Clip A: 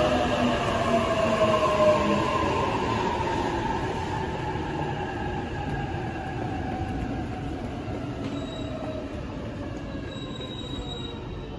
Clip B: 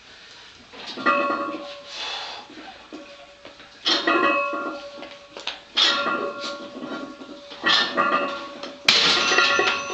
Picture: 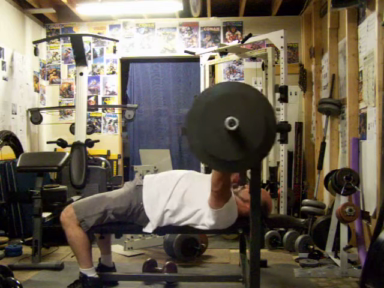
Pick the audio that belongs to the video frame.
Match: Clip B